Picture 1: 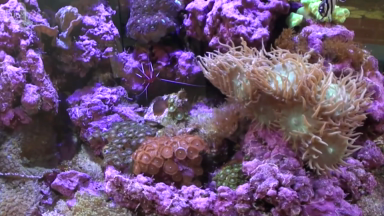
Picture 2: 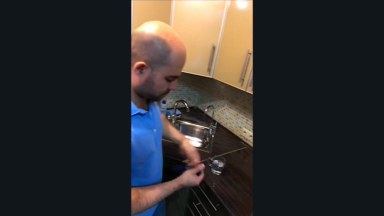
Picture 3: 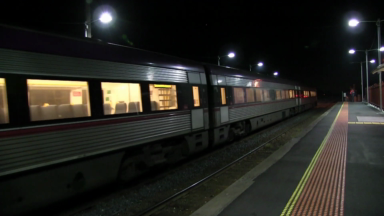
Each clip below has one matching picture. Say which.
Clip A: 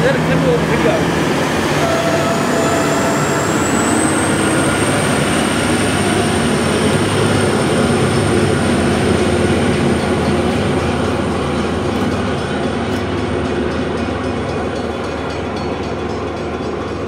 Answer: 3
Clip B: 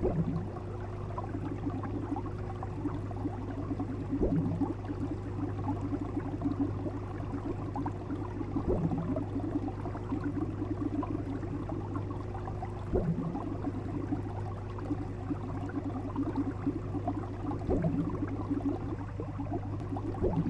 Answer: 1